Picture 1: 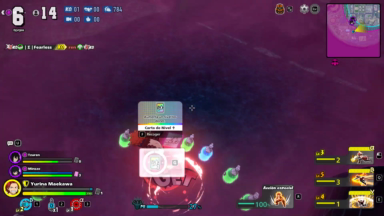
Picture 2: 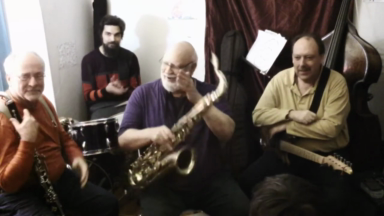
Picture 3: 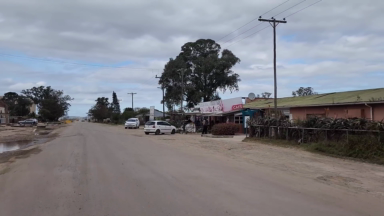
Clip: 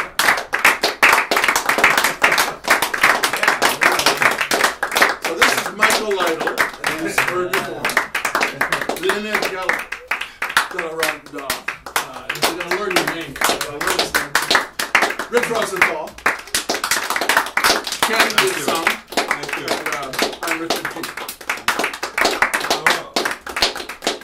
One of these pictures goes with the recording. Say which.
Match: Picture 2